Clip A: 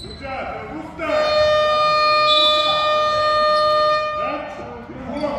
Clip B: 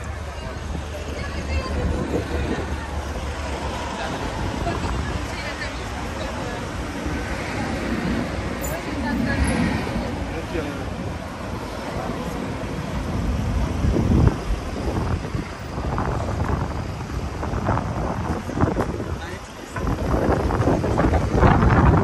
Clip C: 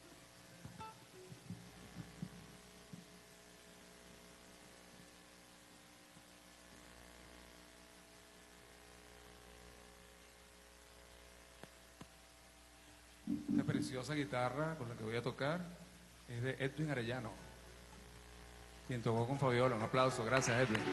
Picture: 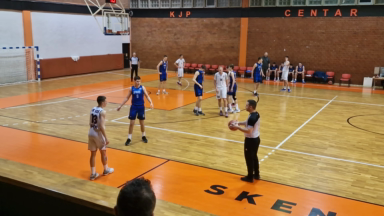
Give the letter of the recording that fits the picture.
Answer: A